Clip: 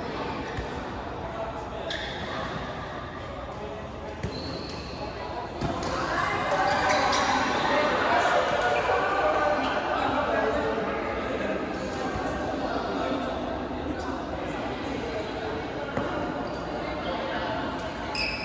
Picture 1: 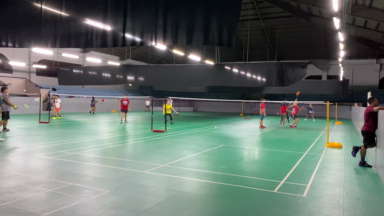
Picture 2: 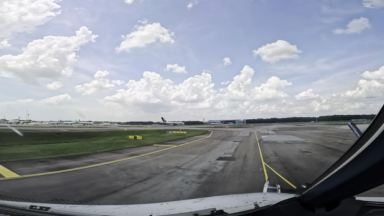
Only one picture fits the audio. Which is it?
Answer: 1